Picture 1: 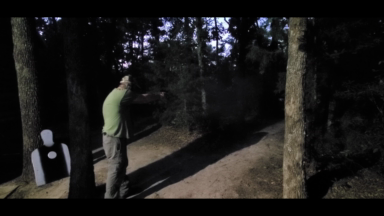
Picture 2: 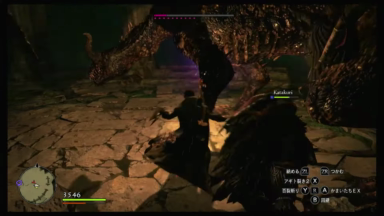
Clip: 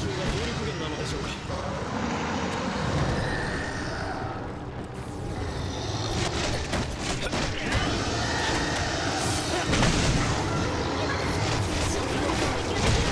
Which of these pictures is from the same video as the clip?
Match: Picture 2